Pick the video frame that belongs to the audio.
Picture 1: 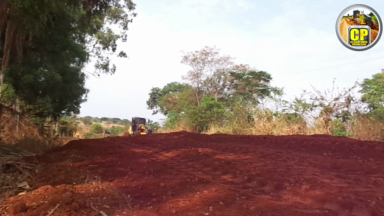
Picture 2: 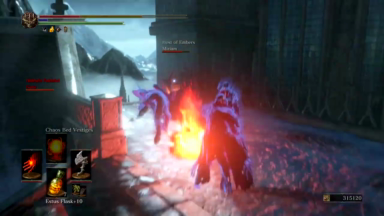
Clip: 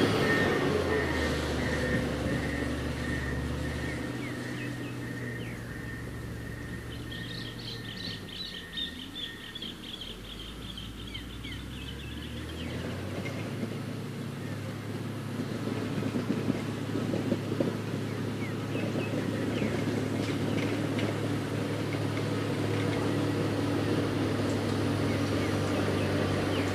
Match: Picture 1